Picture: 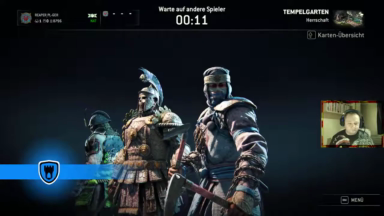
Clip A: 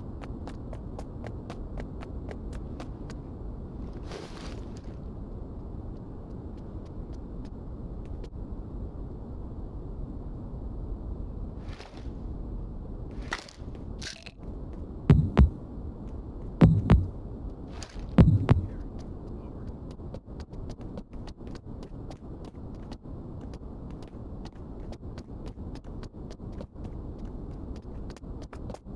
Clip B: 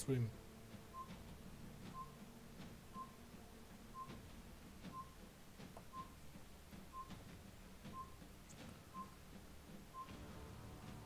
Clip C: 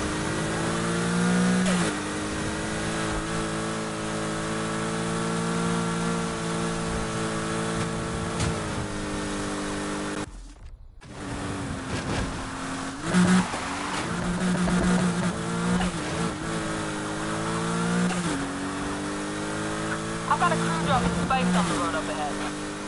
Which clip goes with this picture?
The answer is B